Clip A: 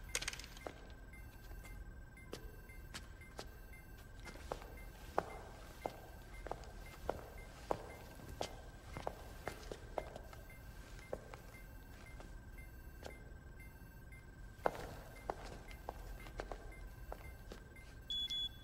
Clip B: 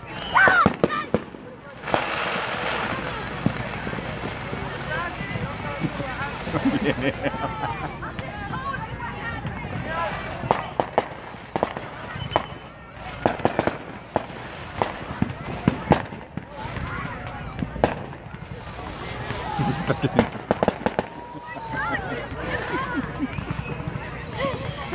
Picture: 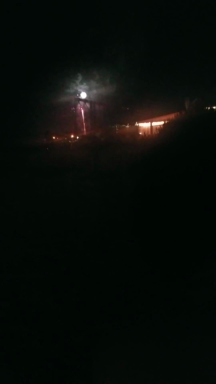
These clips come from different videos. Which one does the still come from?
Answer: B